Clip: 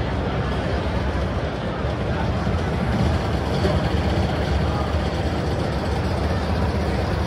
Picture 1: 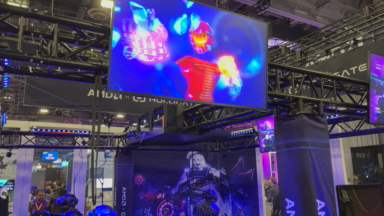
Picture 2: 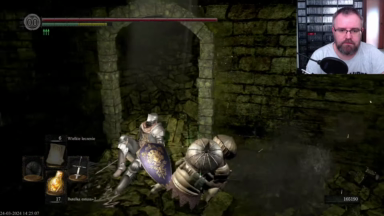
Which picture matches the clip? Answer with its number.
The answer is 1